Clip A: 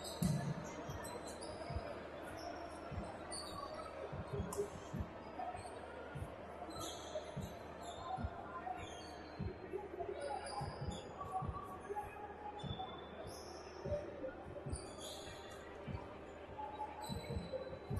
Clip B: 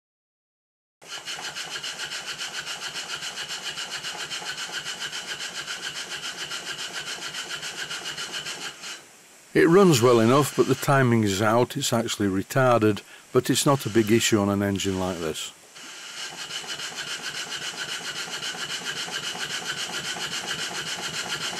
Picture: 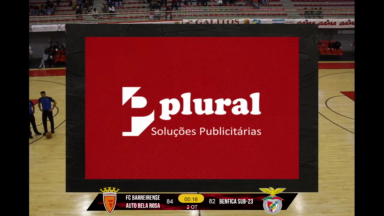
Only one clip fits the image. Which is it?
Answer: A